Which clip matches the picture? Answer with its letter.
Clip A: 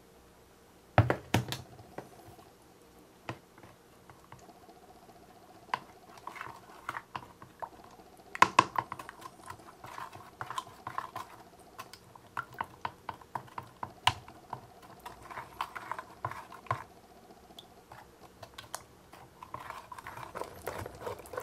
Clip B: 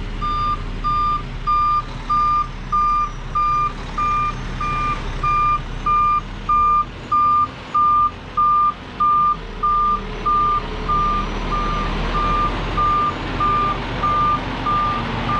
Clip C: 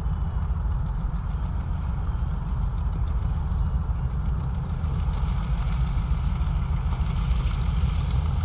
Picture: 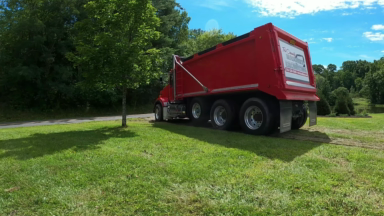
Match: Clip B